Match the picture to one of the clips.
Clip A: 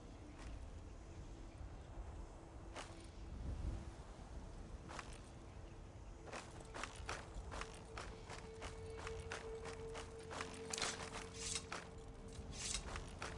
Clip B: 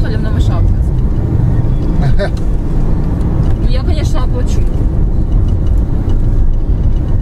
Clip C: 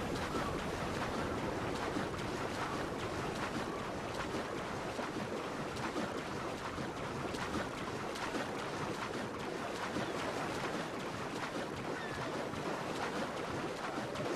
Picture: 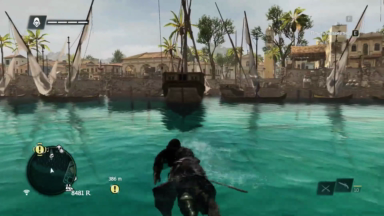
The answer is C